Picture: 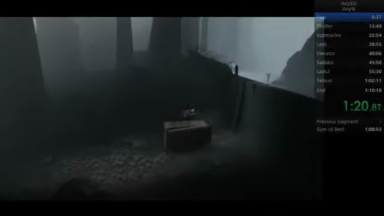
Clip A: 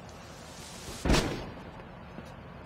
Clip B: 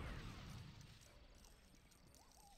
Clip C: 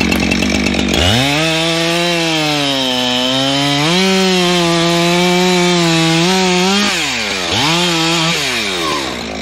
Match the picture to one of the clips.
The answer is A